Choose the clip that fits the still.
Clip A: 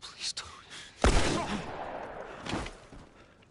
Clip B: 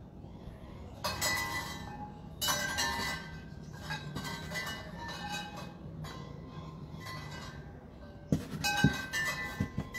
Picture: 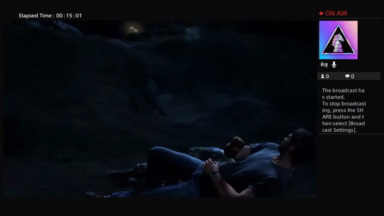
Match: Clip A